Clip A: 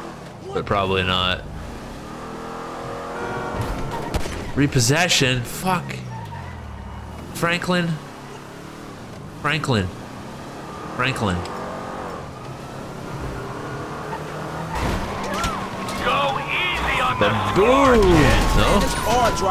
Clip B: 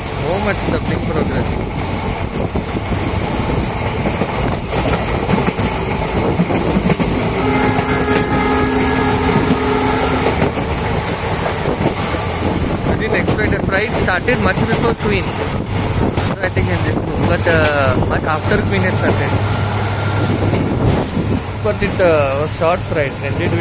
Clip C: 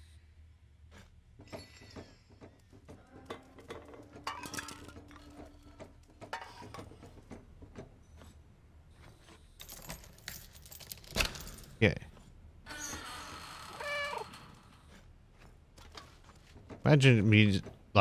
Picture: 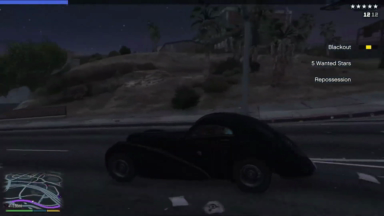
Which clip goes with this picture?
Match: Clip A